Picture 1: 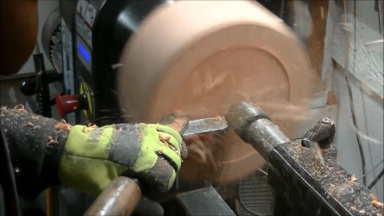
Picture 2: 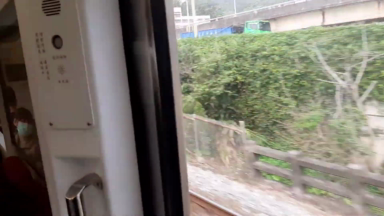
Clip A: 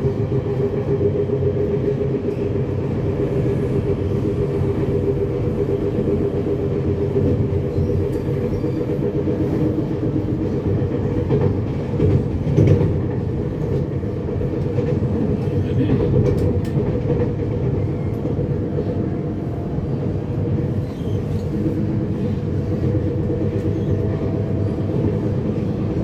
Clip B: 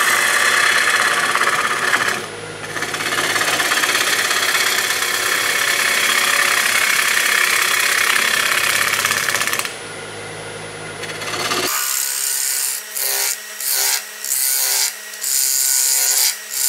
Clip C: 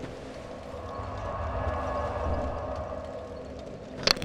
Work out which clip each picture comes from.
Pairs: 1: B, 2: A